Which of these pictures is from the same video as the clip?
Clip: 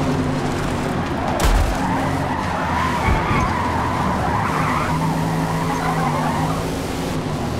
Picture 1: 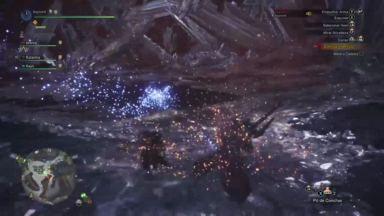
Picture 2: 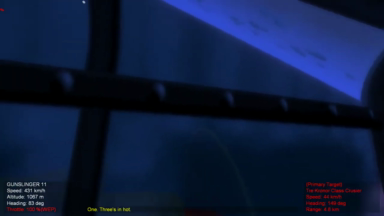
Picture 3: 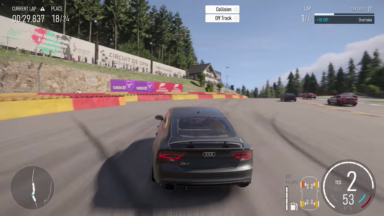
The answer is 3